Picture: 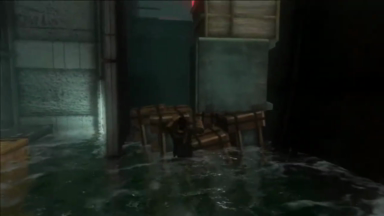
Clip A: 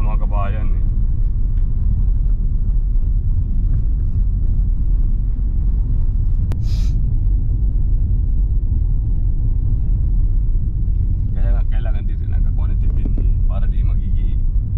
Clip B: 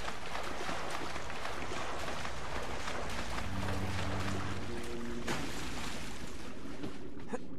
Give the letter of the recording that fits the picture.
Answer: B